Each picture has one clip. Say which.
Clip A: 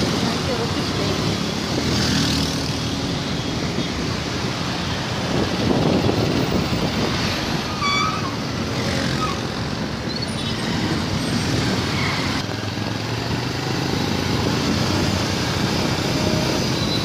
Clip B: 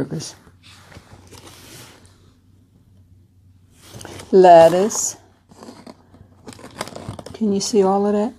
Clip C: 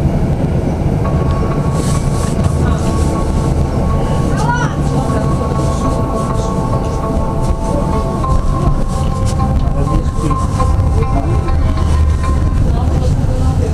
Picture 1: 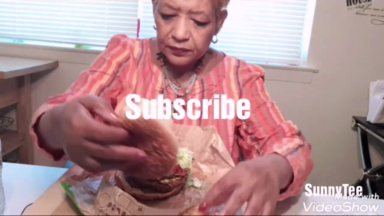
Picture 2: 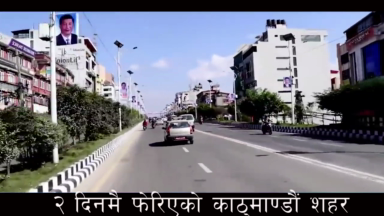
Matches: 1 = B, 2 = A